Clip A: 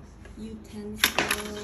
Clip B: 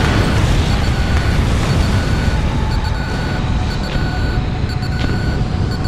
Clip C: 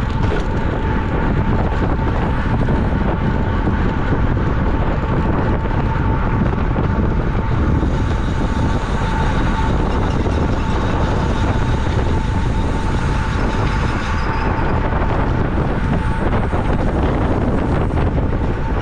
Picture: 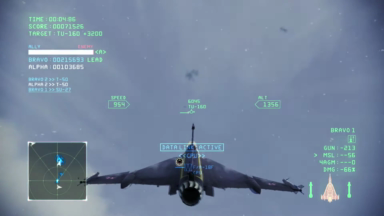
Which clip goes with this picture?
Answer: B